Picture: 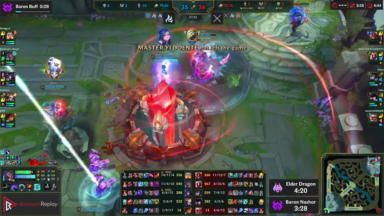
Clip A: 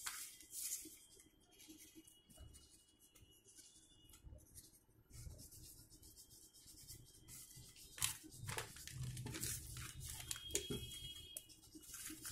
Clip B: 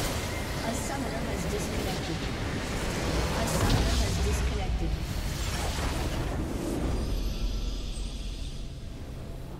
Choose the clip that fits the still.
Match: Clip B